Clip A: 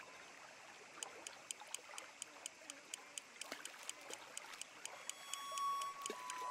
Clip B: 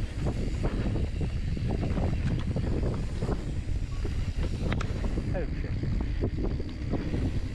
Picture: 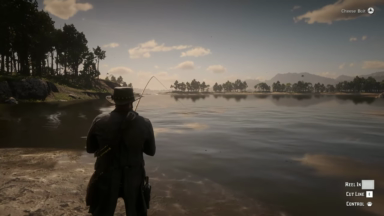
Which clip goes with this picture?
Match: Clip A